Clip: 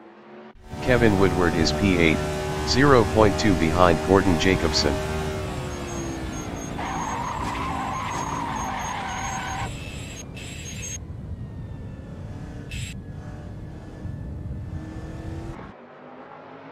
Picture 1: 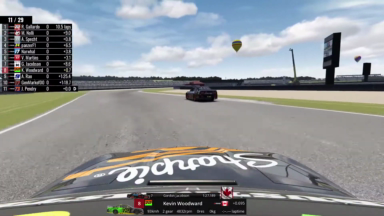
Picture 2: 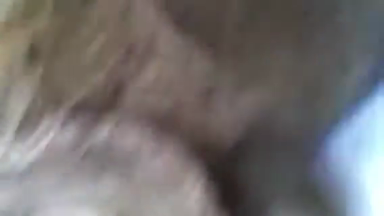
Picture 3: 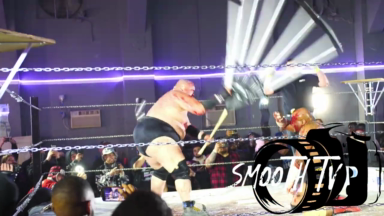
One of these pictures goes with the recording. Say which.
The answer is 1